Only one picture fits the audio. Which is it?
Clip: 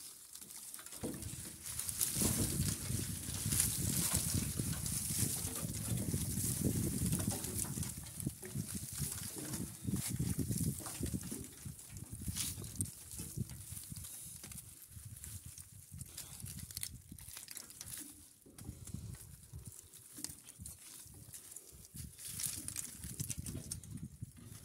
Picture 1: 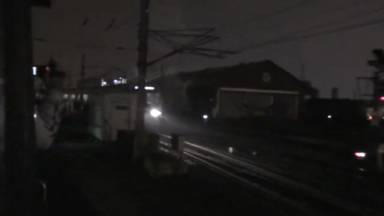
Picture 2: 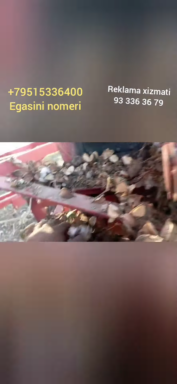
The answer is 2